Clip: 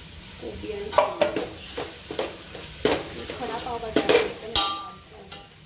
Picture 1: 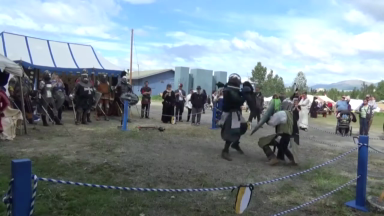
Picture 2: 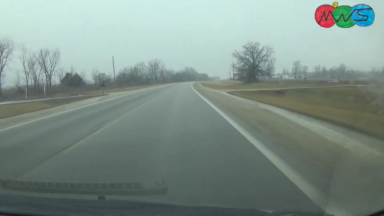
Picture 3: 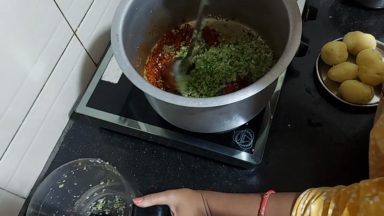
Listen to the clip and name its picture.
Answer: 3